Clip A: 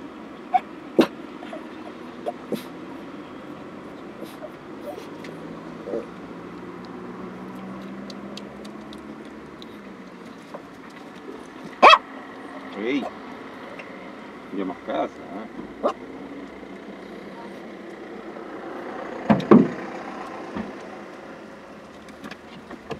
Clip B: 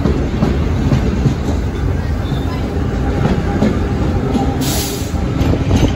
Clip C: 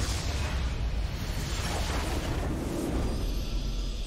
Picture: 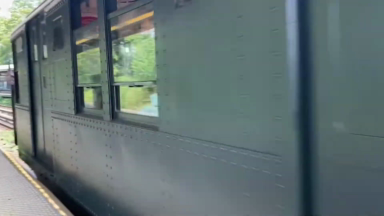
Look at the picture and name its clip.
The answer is B